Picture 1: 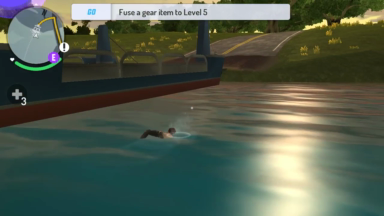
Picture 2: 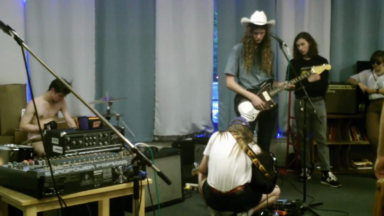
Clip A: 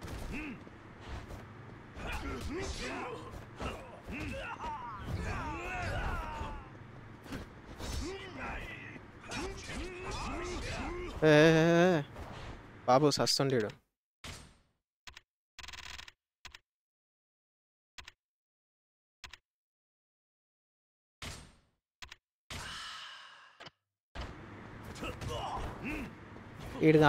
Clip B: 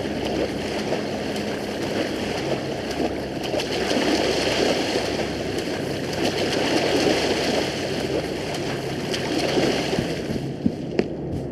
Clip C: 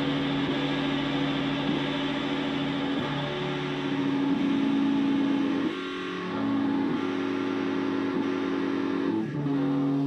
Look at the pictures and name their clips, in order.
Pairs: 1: B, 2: C